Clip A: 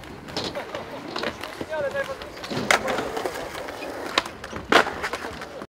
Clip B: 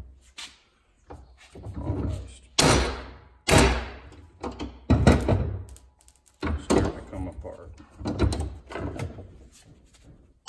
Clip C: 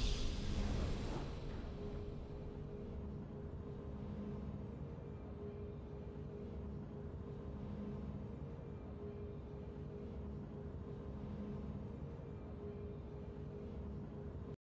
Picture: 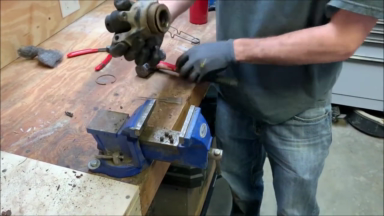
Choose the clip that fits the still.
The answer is B